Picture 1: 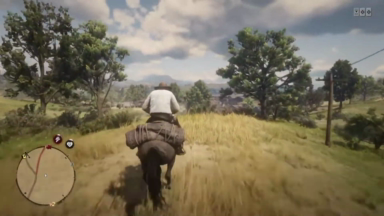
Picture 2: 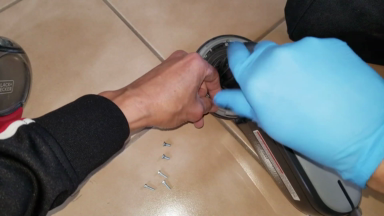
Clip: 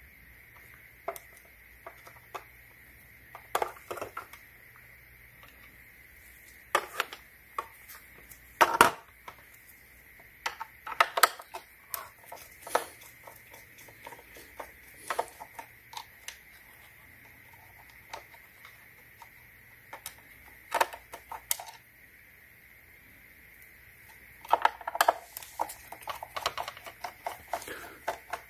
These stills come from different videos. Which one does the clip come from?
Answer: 2